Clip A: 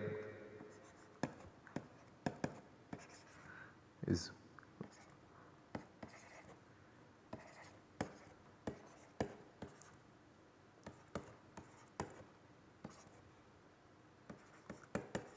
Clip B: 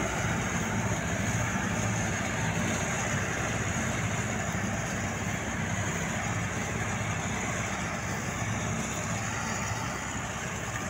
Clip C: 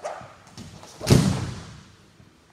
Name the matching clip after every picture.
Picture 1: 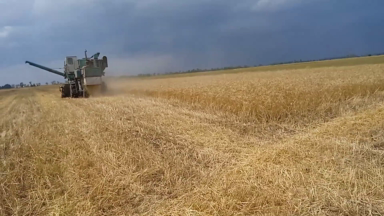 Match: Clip B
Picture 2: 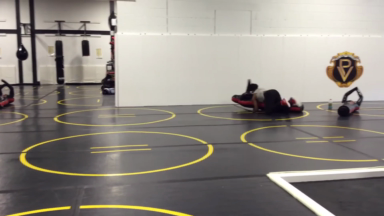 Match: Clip C